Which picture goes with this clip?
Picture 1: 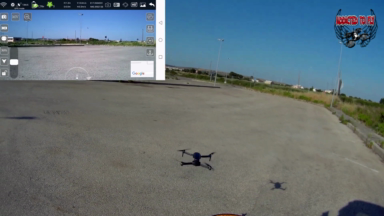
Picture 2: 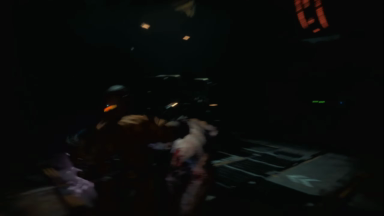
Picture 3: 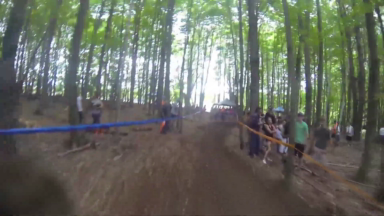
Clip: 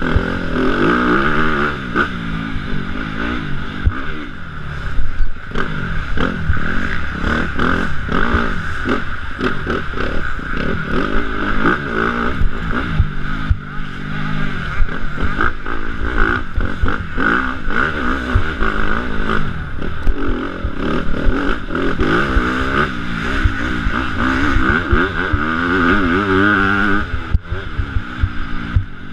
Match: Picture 3